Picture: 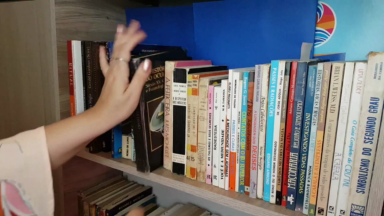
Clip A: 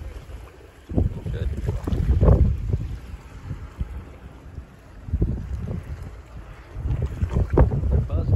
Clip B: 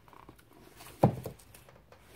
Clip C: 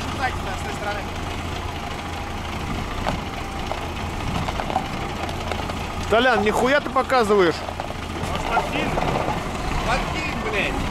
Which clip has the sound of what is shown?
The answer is B